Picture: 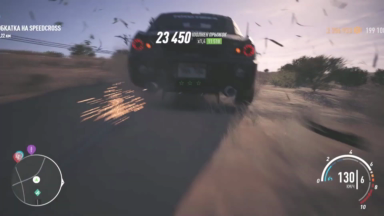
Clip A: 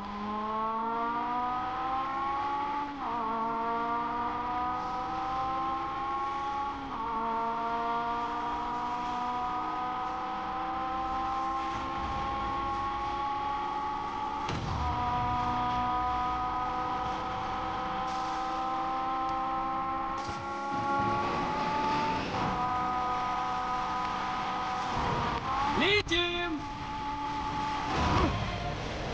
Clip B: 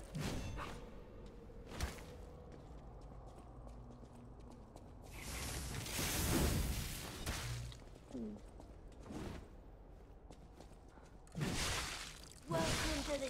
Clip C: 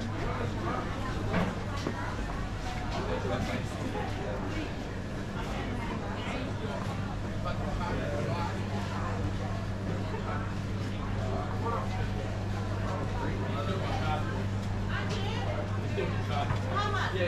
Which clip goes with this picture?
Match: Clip A